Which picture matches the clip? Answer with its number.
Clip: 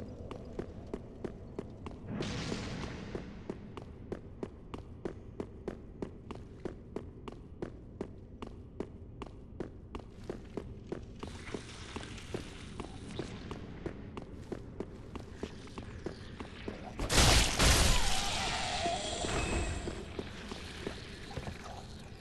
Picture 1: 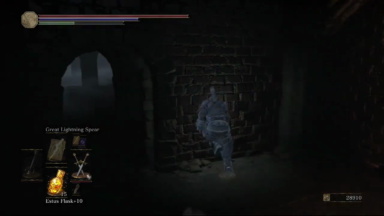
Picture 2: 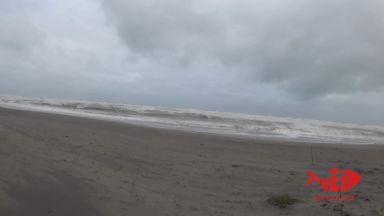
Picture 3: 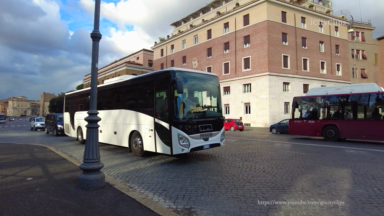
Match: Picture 1